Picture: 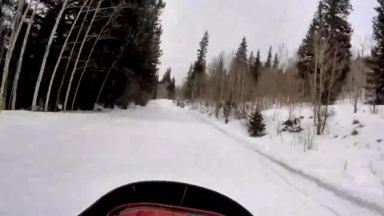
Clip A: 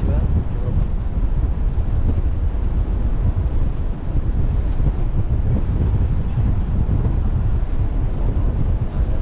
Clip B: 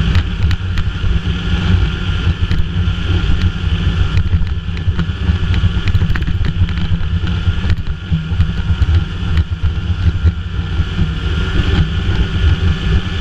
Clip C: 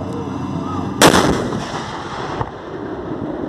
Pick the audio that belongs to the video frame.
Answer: B